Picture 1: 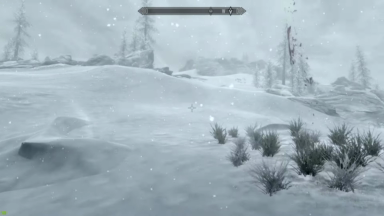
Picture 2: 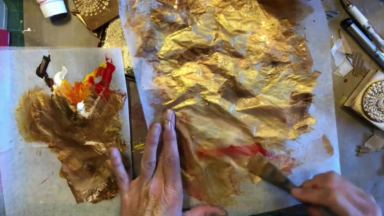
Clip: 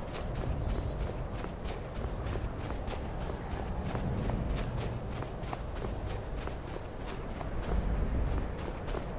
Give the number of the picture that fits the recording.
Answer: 1